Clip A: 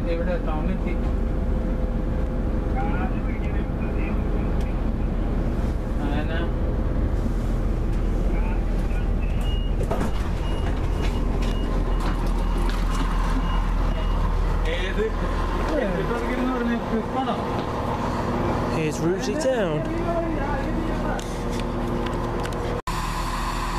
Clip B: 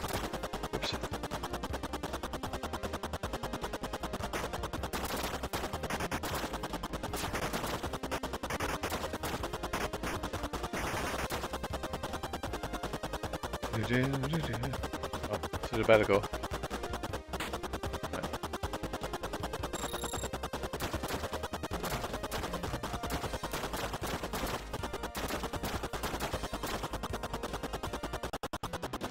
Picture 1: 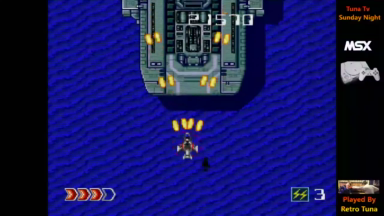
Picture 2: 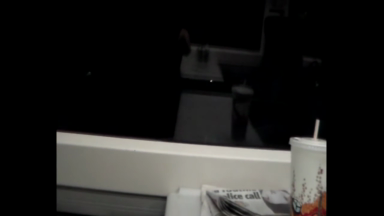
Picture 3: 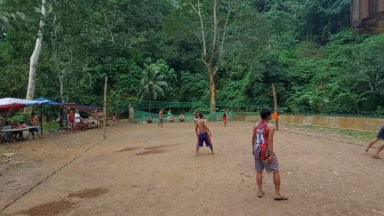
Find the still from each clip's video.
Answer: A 2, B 1